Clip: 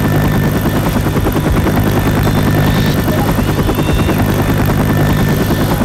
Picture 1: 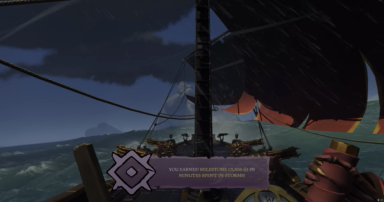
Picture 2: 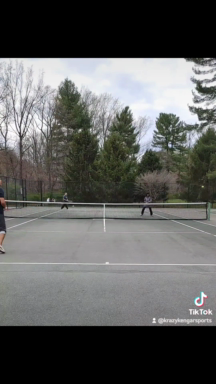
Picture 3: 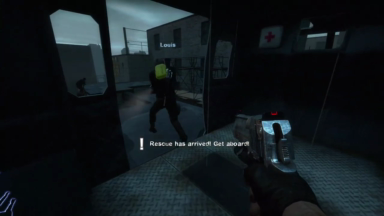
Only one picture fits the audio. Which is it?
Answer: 3